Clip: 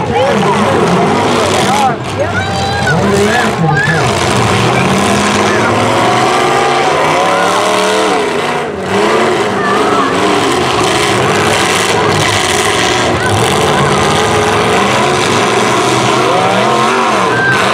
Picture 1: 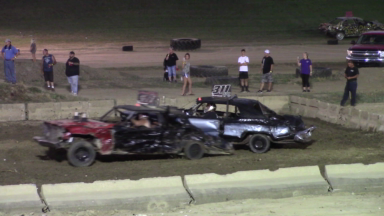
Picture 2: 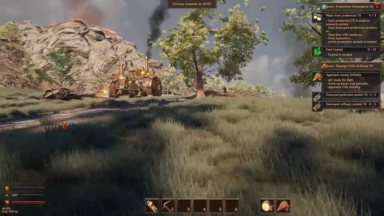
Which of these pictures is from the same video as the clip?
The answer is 1